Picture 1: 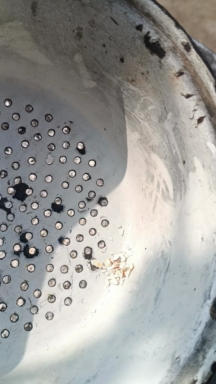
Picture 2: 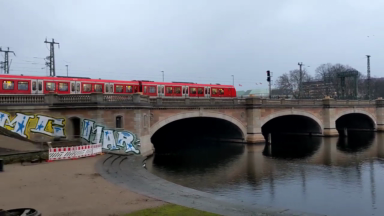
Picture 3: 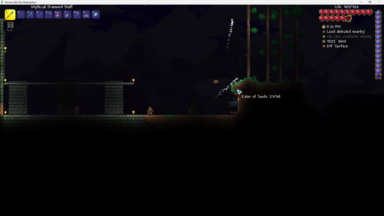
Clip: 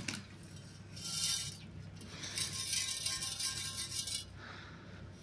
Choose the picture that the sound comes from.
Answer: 1